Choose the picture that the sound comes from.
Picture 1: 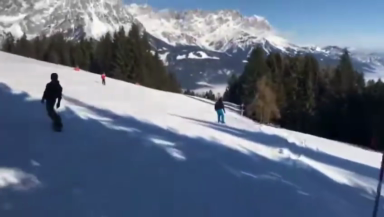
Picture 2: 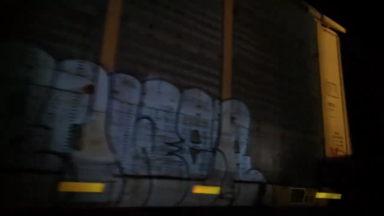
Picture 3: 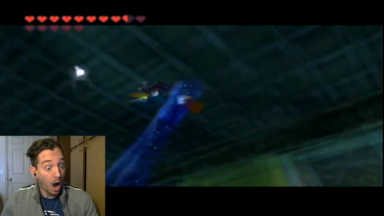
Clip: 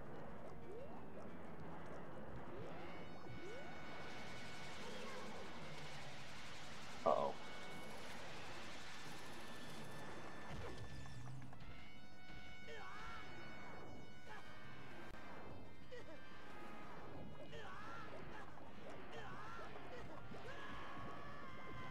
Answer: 3